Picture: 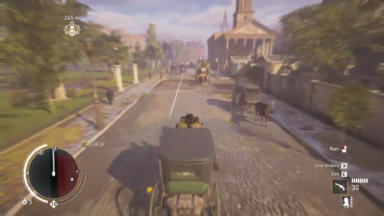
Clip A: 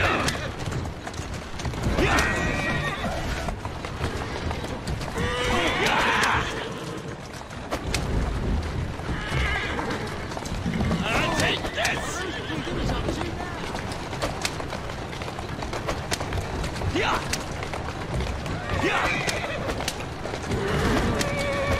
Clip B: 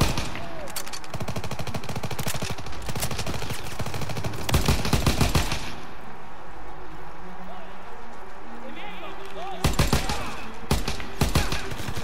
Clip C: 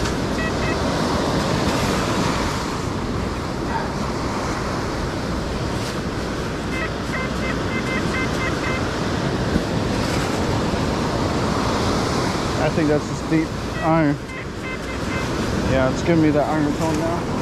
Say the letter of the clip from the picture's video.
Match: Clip A